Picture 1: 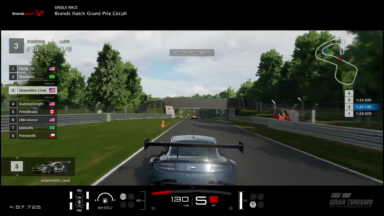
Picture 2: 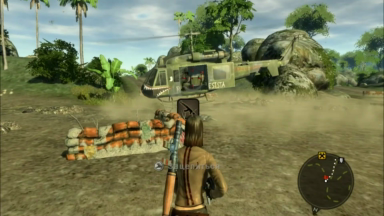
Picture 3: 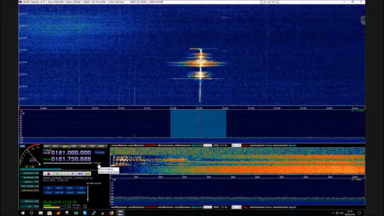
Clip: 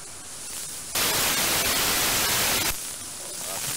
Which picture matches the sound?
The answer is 3